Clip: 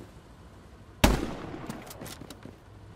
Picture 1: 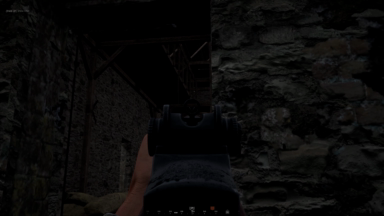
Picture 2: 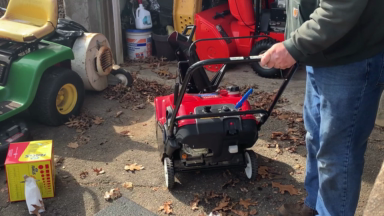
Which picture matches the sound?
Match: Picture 1